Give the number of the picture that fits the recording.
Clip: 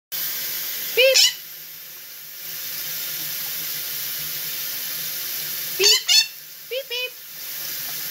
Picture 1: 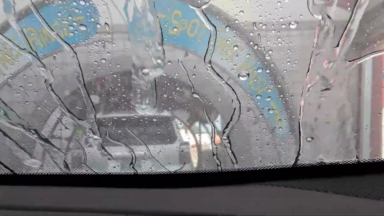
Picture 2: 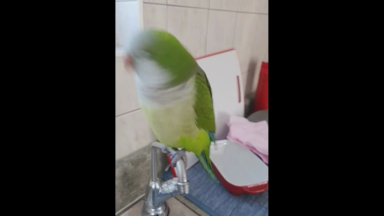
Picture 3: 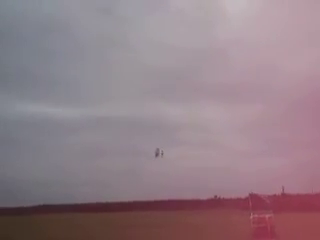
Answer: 2